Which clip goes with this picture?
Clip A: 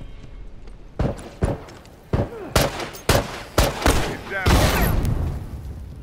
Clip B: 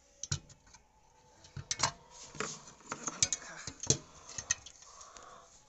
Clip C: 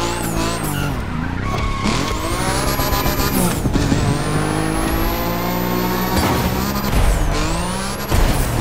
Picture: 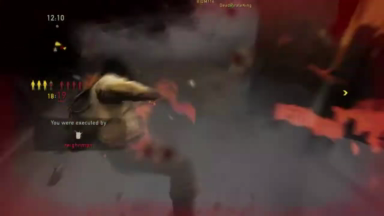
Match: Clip A